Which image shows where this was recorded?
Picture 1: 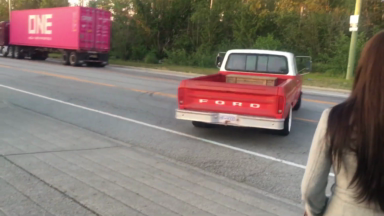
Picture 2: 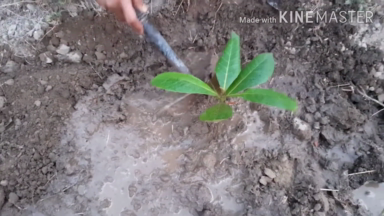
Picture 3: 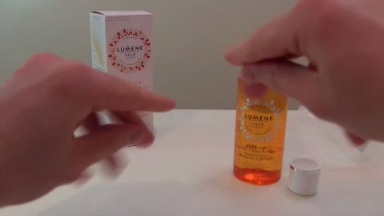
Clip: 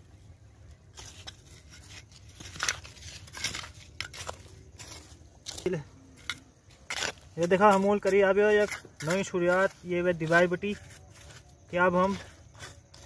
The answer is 2